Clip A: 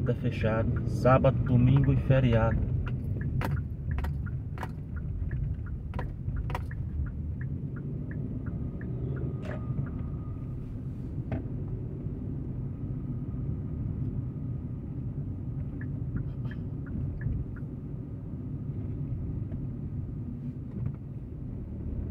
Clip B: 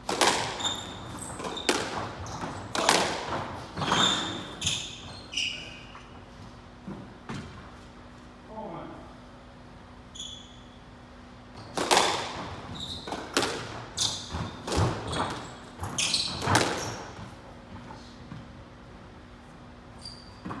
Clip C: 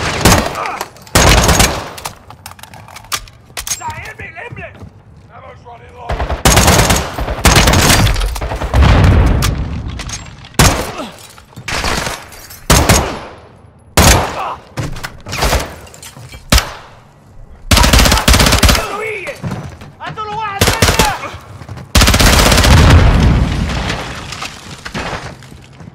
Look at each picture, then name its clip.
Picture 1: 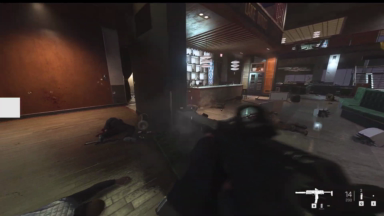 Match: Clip C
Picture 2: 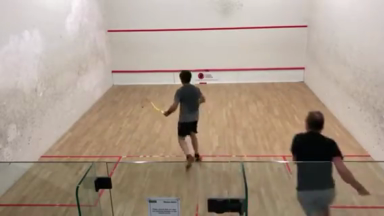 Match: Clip B